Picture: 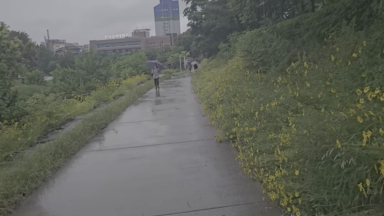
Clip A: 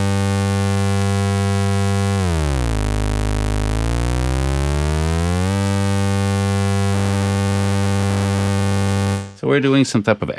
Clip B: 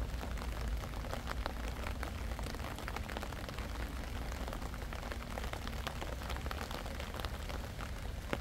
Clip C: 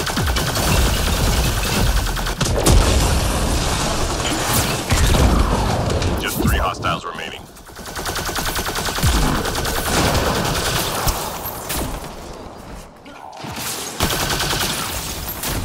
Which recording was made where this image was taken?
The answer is B